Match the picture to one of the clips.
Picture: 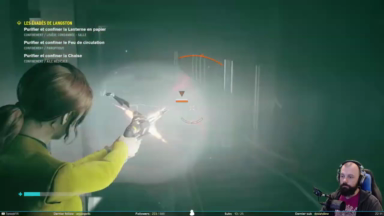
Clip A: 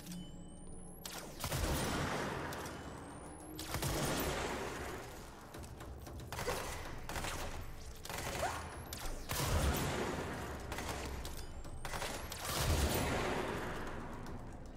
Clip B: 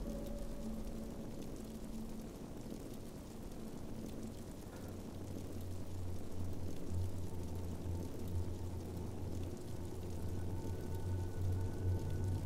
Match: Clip A